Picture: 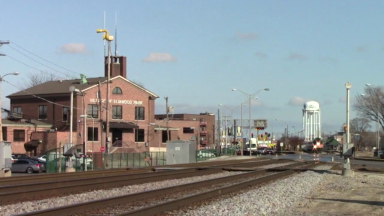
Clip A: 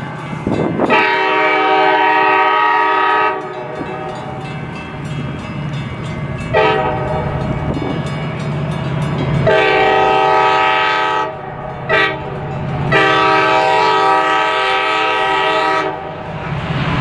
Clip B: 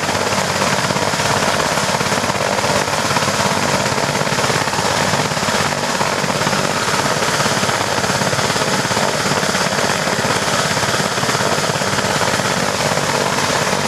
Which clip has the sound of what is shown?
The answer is A